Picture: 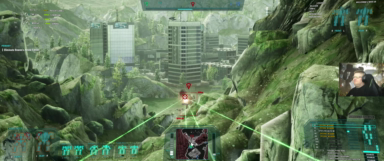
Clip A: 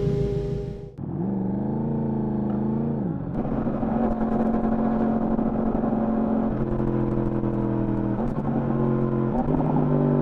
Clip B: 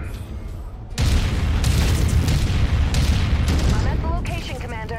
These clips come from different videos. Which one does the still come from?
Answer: B